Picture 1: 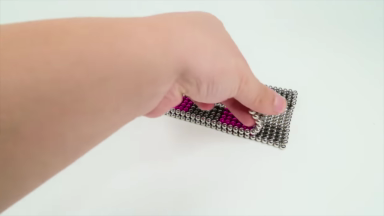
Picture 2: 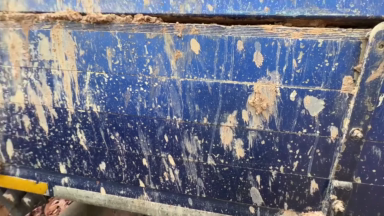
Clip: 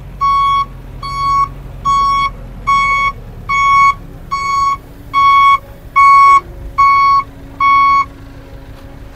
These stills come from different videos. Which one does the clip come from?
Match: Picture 2